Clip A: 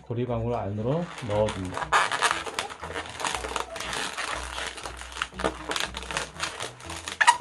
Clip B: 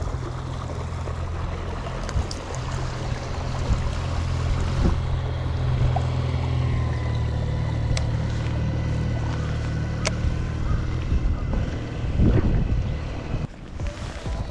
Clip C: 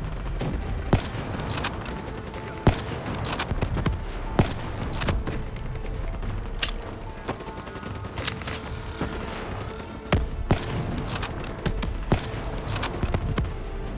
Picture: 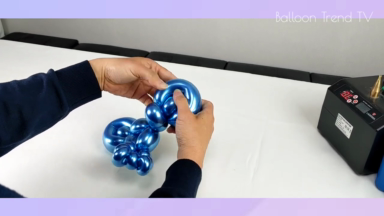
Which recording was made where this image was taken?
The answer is A